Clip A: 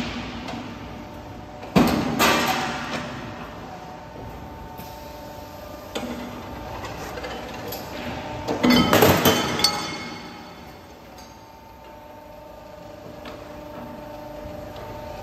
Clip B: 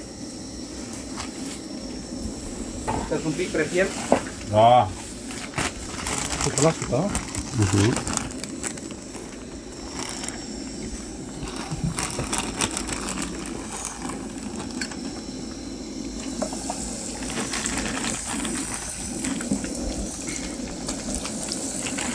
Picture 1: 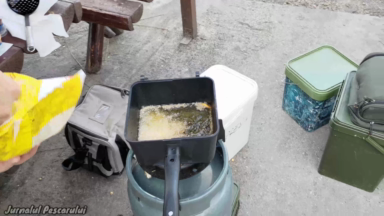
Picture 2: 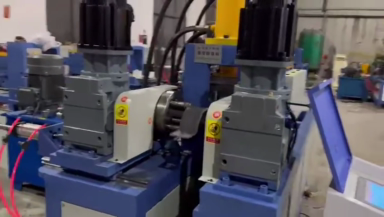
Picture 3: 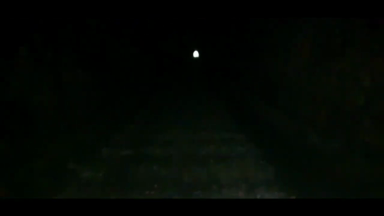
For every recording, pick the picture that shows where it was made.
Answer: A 2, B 1